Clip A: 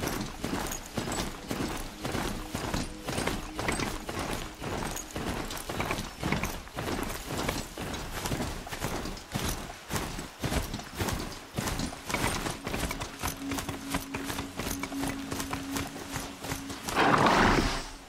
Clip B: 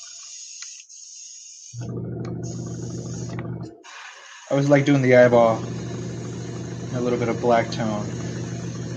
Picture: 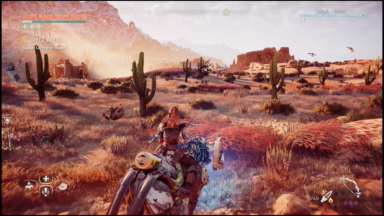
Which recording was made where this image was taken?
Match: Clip A